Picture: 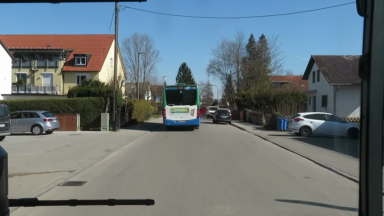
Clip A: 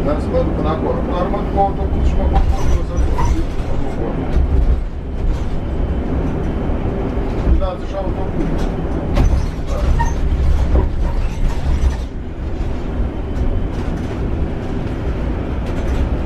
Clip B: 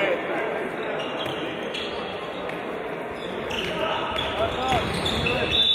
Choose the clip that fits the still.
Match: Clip A